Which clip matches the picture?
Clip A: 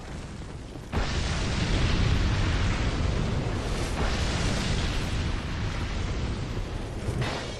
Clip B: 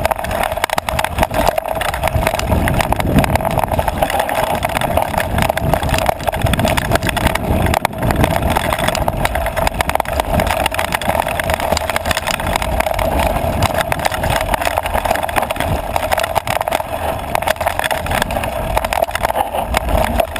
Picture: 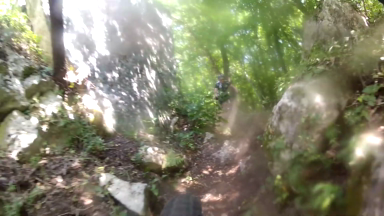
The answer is B